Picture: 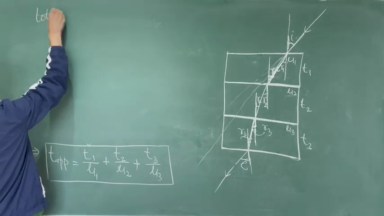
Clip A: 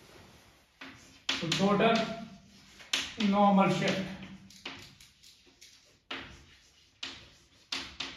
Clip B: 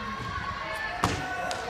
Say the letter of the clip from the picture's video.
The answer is A